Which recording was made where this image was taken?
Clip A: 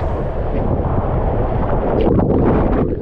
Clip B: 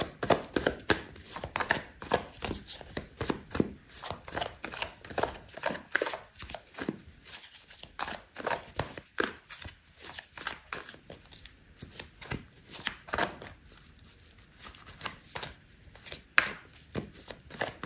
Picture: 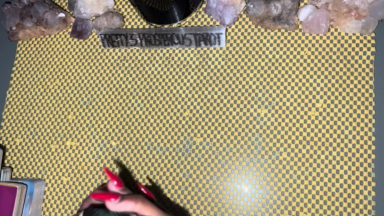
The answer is B